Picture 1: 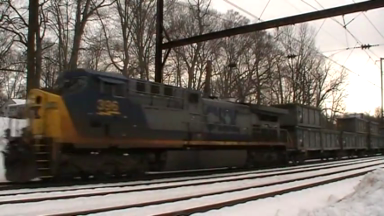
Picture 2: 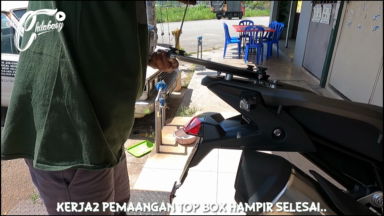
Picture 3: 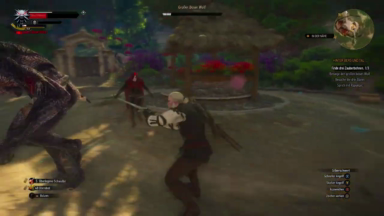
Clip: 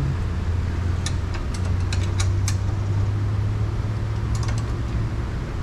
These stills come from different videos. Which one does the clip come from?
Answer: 2